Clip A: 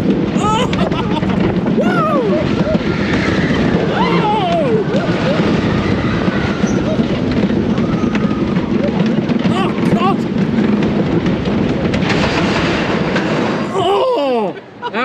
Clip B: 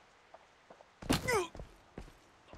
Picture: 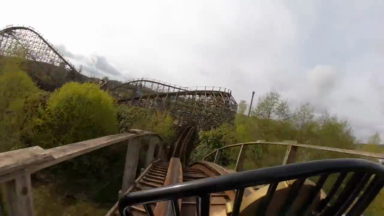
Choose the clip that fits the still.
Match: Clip A